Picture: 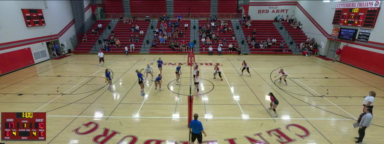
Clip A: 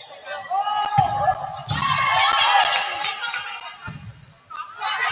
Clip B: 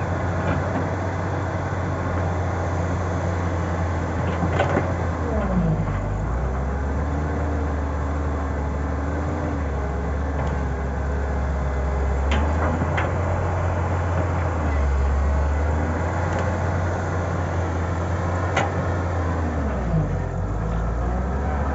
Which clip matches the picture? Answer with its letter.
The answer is A